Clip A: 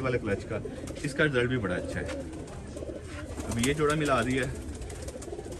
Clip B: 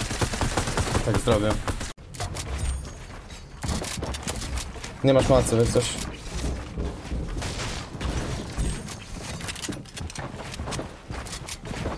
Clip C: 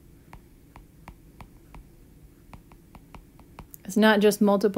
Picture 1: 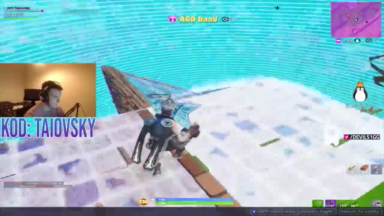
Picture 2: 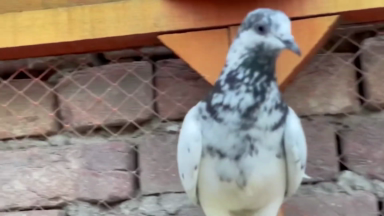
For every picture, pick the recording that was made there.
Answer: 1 B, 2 A